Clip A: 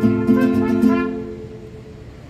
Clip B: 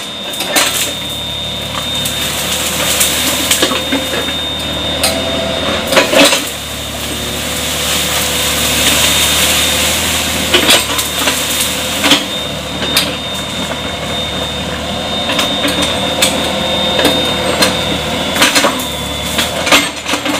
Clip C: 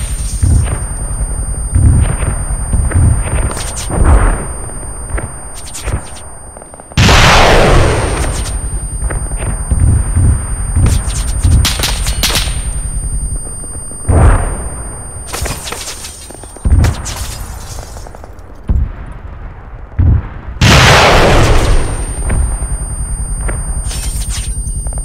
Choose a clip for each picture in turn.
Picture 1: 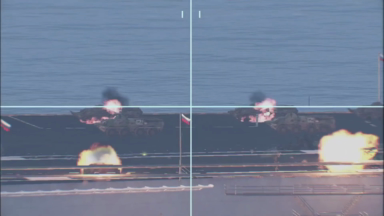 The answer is C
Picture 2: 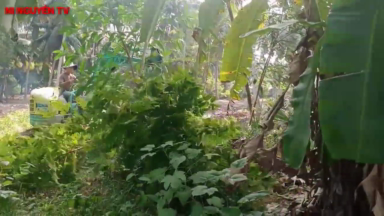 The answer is B